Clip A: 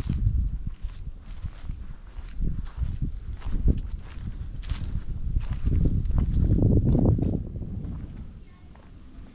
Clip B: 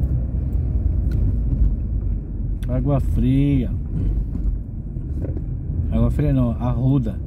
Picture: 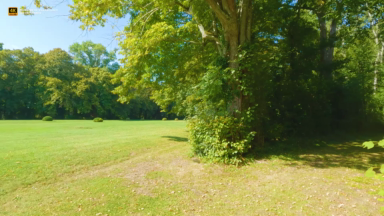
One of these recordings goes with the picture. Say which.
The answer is A